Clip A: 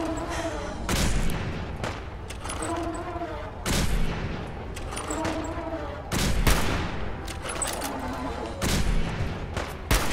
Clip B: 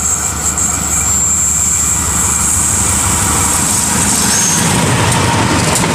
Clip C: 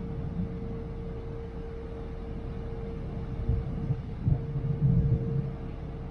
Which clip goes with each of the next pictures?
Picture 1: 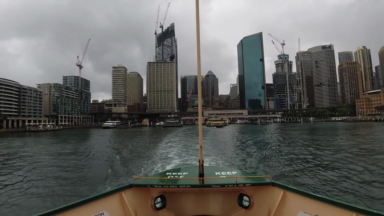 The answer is C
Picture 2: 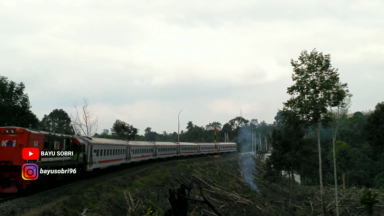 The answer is B